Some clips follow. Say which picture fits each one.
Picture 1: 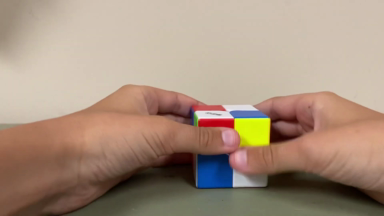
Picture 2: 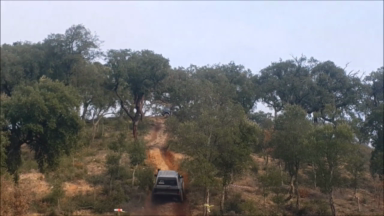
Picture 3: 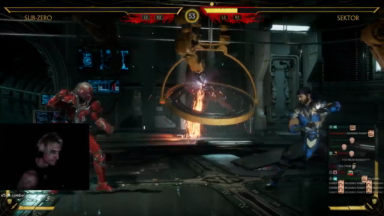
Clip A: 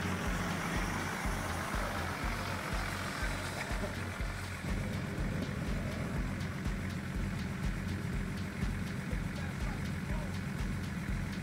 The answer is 2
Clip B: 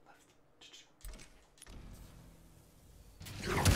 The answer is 3